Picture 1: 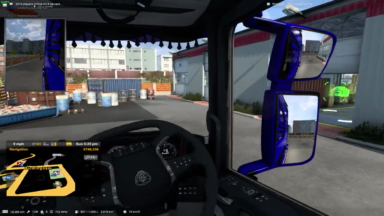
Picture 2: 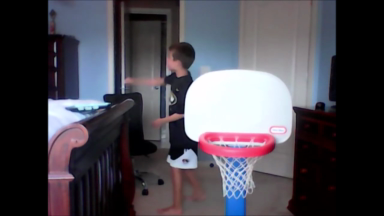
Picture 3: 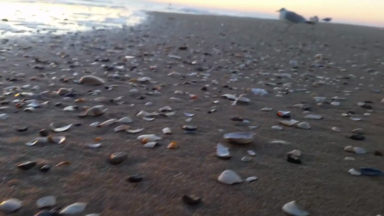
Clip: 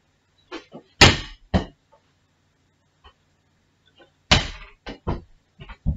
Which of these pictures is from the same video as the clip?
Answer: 2